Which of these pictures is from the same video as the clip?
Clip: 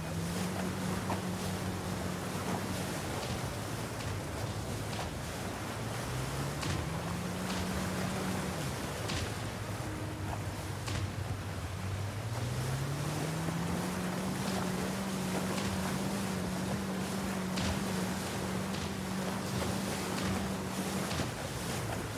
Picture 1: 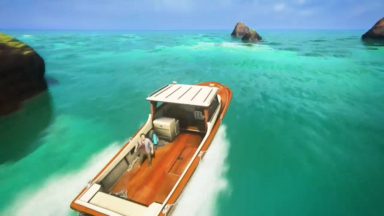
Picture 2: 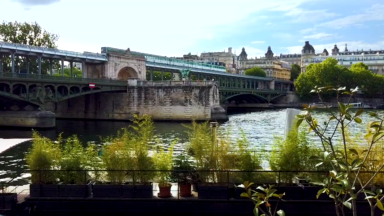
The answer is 1